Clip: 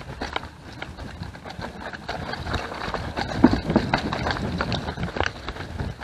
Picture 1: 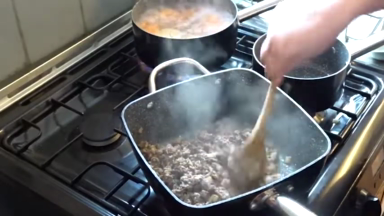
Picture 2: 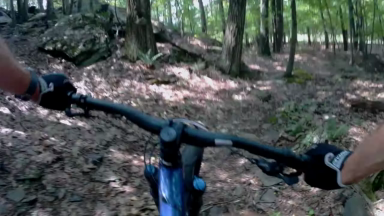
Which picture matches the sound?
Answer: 2